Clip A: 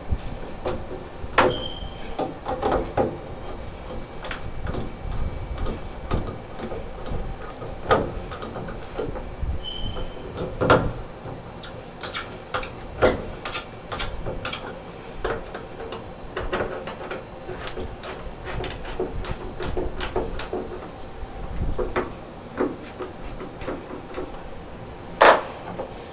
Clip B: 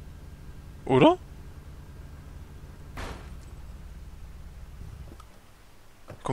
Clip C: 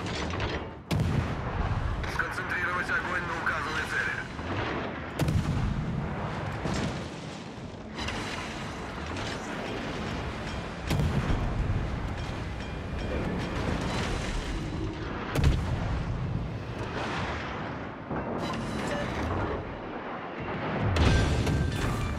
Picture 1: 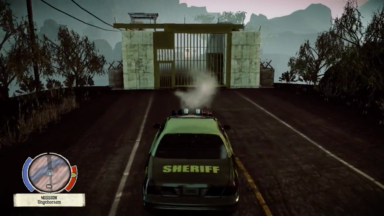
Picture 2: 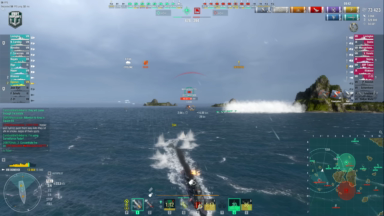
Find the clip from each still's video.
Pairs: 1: B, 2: C